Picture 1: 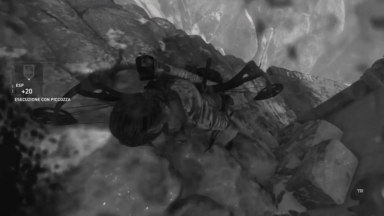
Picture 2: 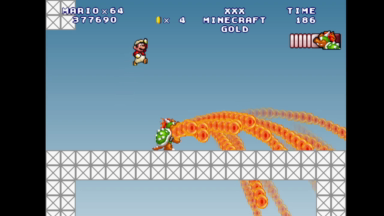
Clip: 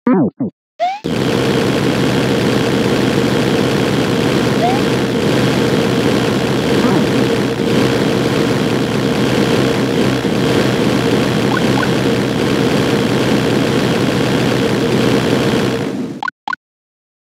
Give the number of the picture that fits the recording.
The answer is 2